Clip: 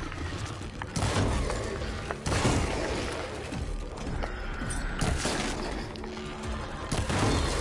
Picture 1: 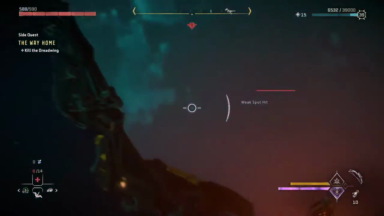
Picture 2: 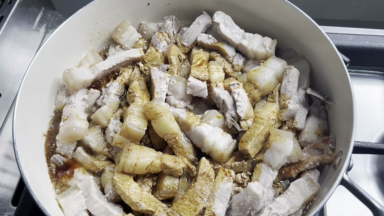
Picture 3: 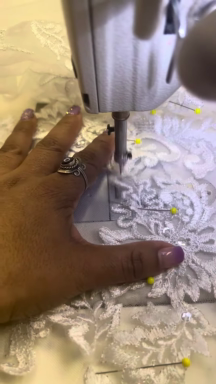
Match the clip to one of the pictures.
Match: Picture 1